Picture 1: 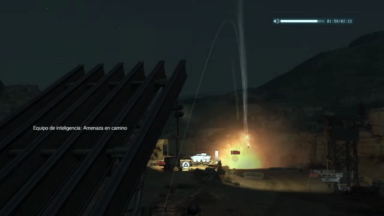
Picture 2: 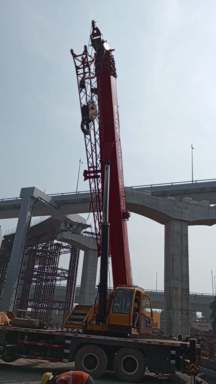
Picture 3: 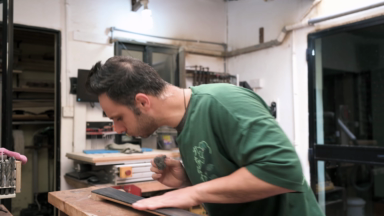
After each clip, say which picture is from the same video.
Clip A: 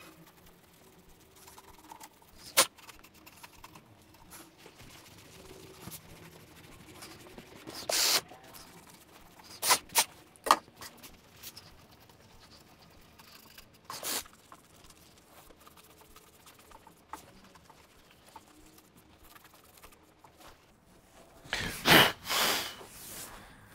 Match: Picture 3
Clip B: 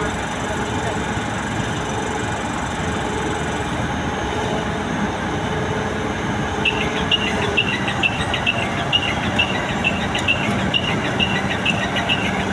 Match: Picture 2